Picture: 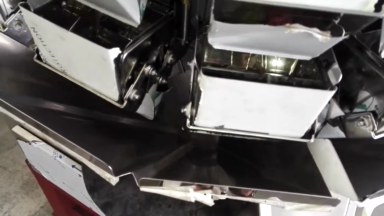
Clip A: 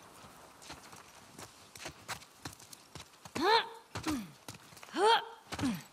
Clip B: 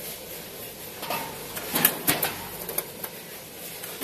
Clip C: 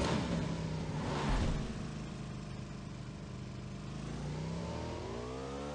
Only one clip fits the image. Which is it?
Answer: B